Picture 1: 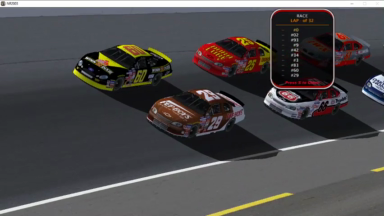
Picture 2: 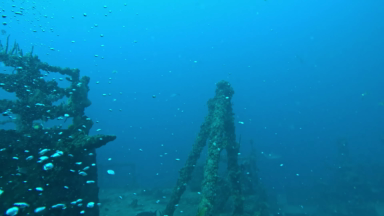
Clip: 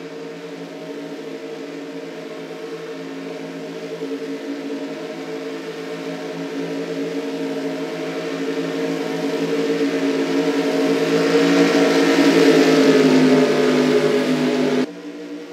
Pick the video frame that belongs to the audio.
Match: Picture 1